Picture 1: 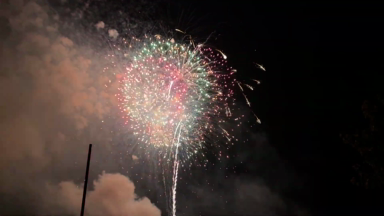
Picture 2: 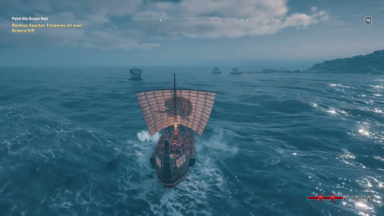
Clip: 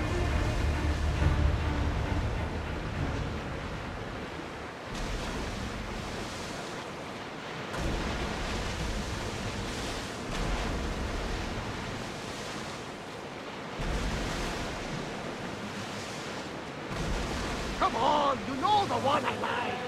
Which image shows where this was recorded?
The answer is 2